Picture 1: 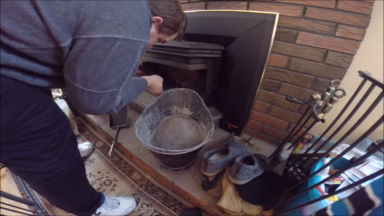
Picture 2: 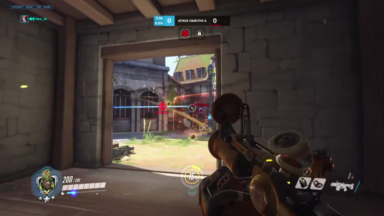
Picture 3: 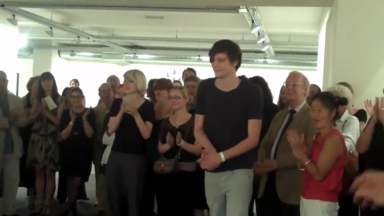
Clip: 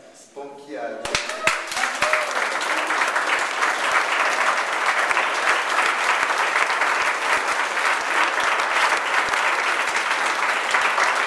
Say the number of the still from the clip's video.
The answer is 3